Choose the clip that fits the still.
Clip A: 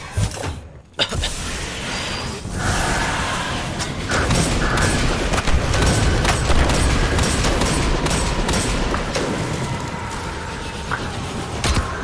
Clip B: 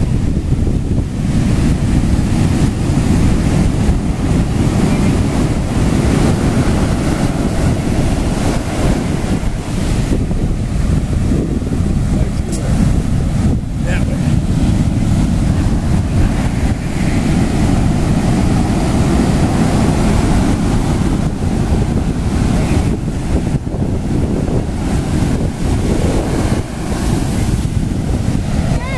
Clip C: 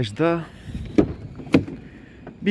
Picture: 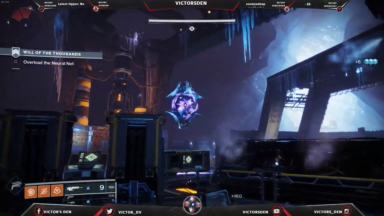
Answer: A